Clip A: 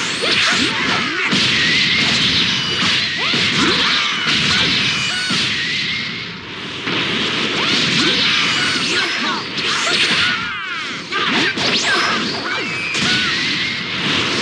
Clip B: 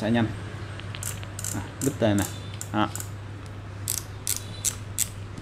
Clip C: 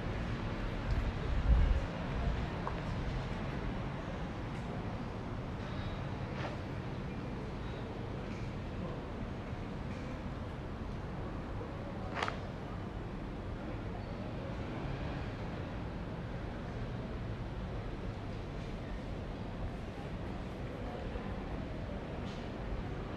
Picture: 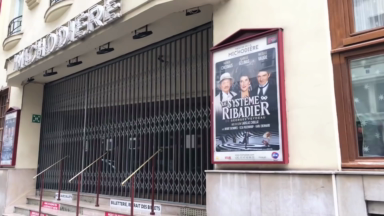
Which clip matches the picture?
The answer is C